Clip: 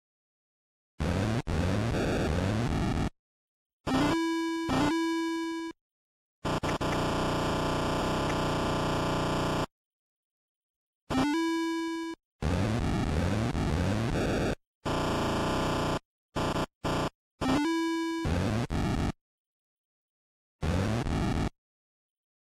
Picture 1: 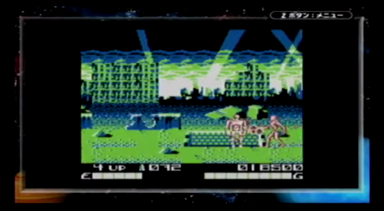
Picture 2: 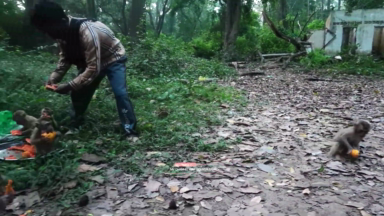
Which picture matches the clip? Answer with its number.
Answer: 1